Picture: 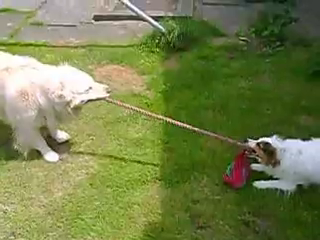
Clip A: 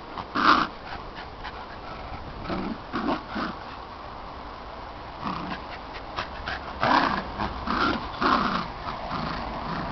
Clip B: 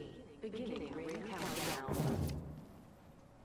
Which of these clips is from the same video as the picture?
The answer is A